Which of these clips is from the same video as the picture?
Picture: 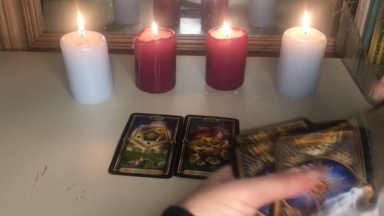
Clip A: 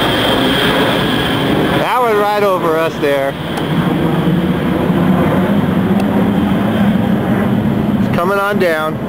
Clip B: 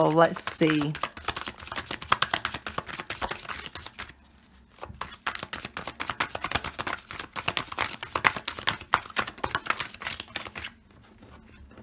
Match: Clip B